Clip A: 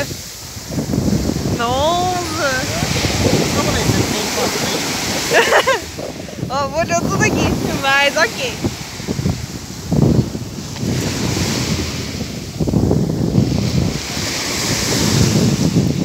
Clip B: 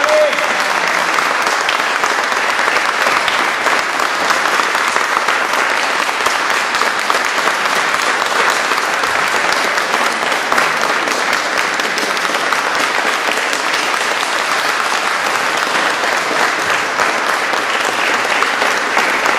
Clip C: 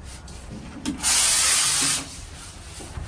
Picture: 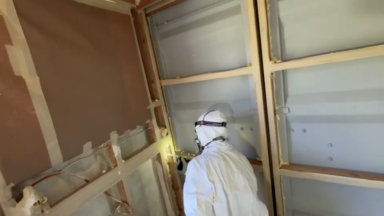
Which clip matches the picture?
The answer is C